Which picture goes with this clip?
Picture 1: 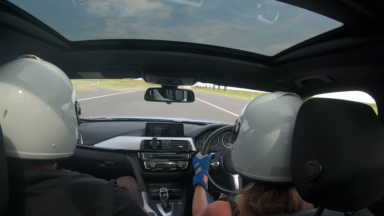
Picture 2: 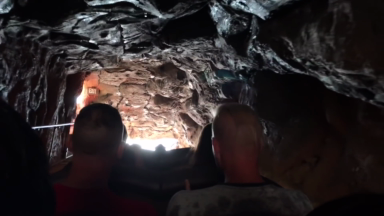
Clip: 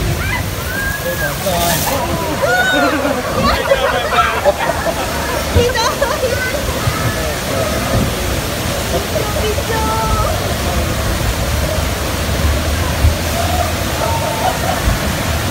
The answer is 2